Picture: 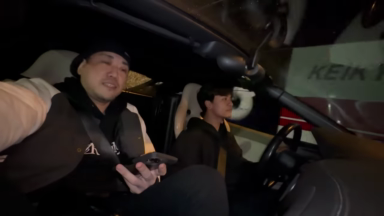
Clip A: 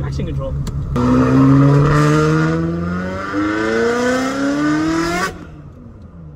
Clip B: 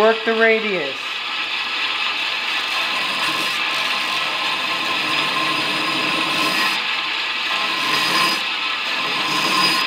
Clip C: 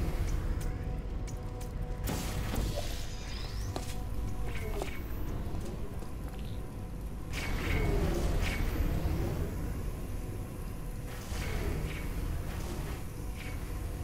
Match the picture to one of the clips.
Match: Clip A